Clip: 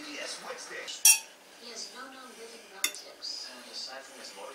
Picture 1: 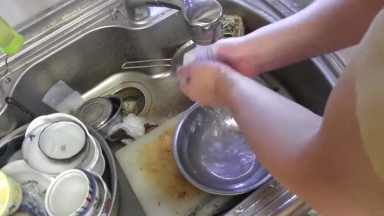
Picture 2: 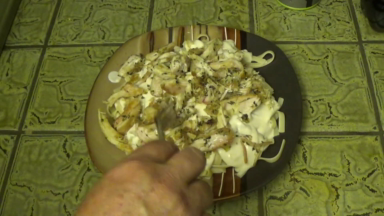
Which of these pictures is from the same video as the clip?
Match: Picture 2